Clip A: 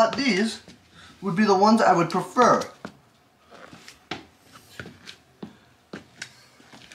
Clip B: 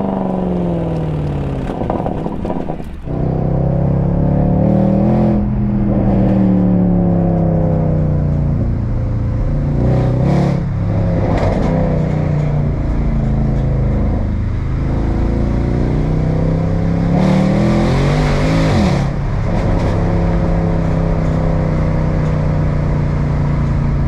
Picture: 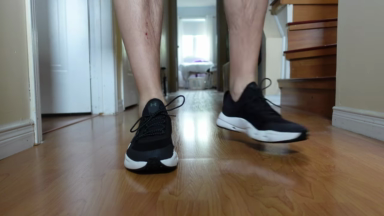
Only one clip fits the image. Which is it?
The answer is A